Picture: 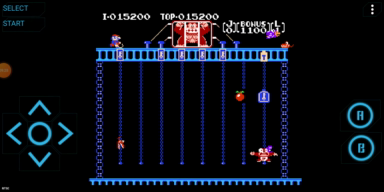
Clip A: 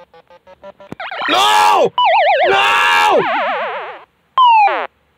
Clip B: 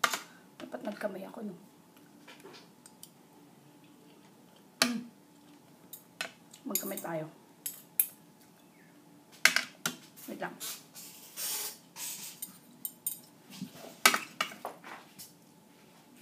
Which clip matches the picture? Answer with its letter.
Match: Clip A